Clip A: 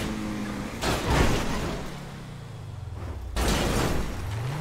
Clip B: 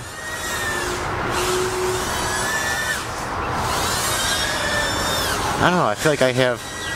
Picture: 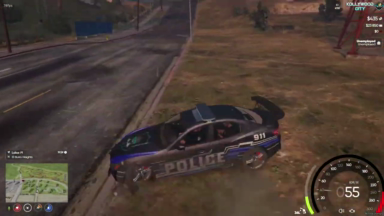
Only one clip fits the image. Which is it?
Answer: A